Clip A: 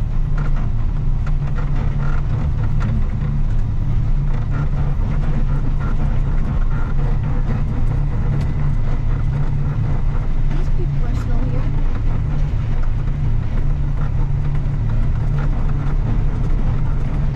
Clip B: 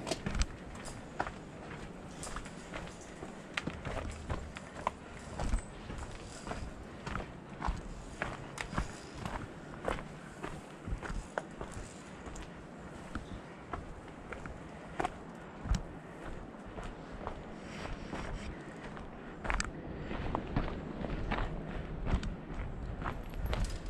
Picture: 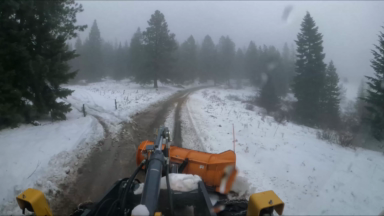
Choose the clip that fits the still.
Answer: A